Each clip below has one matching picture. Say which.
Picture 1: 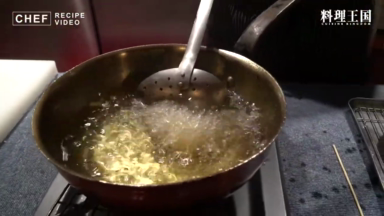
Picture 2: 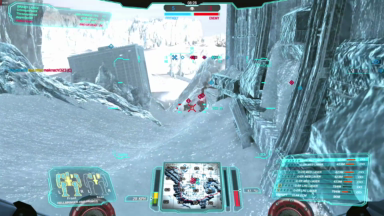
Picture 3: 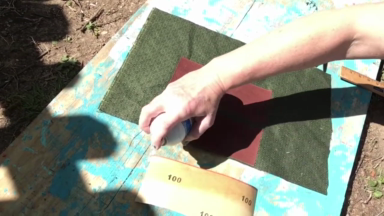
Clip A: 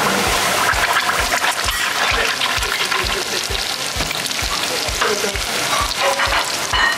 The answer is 1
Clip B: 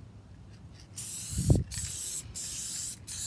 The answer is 3